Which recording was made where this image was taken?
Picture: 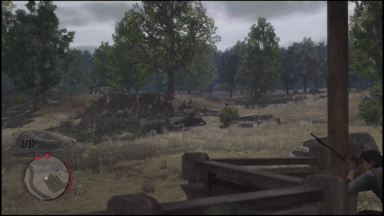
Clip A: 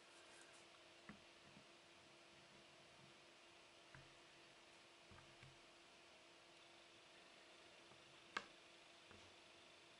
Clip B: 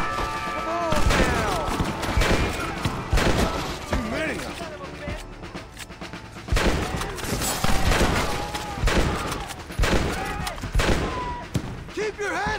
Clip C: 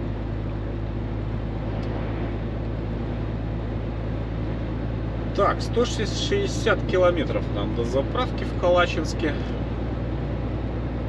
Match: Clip B